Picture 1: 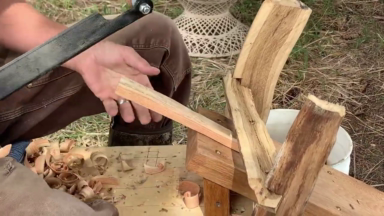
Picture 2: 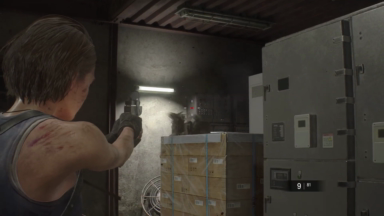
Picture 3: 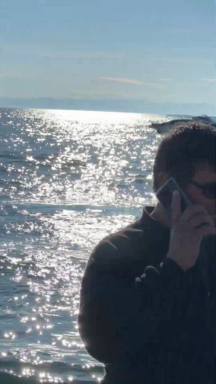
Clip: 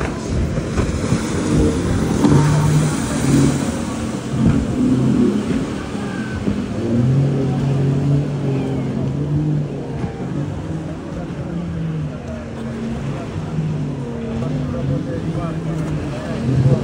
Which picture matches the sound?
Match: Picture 3